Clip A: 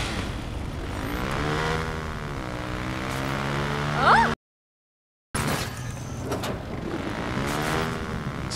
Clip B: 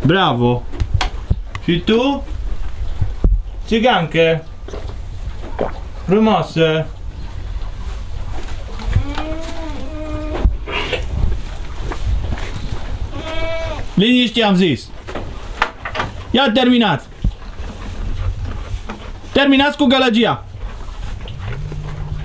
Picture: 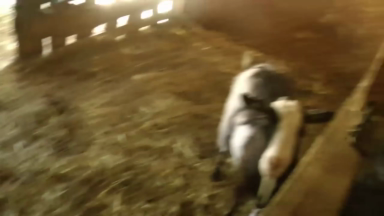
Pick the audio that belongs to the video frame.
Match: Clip B